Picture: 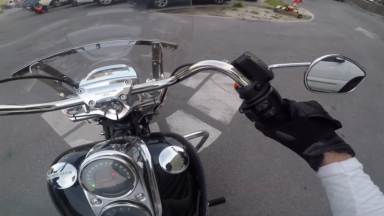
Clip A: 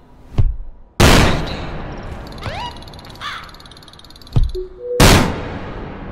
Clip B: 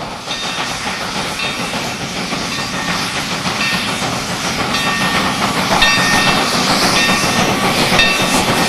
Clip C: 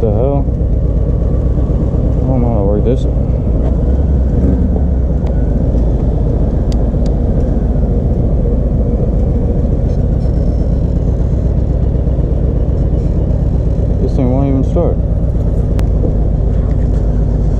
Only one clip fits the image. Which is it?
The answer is C